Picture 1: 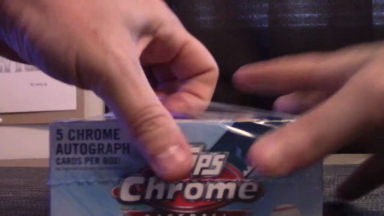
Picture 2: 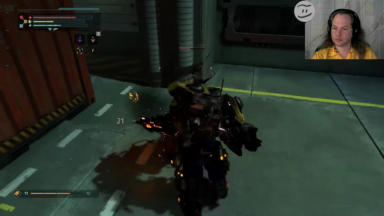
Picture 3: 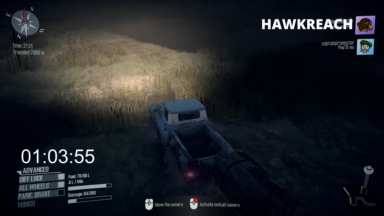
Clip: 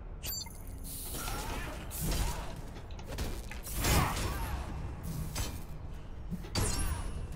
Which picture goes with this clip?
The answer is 2